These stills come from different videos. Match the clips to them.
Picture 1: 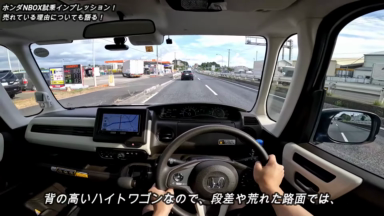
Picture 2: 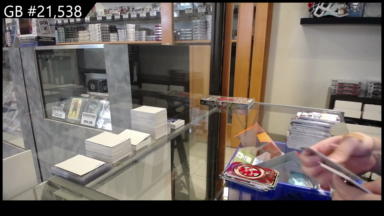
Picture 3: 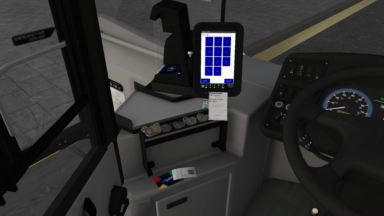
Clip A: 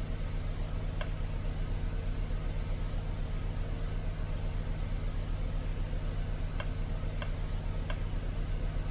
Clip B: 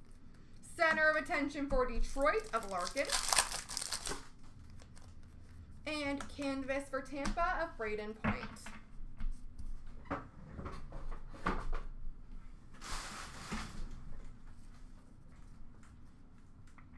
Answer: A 3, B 2